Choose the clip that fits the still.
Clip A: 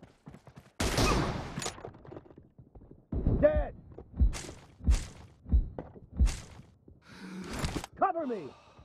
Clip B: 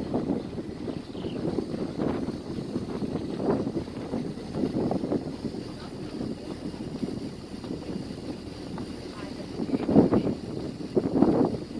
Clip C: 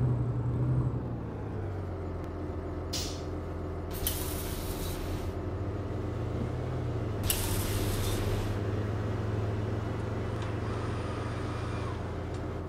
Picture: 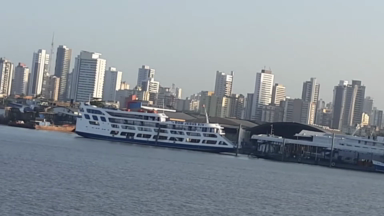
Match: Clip B